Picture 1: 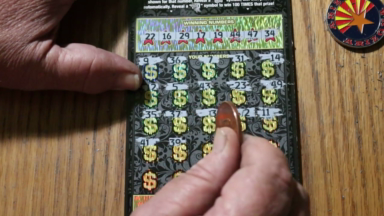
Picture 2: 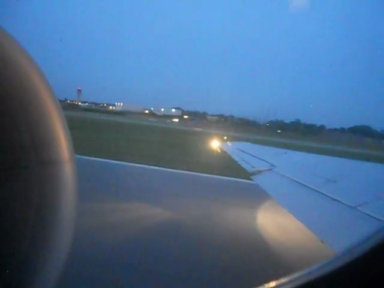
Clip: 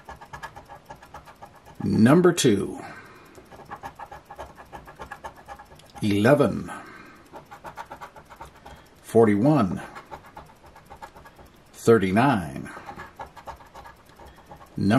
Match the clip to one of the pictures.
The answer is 1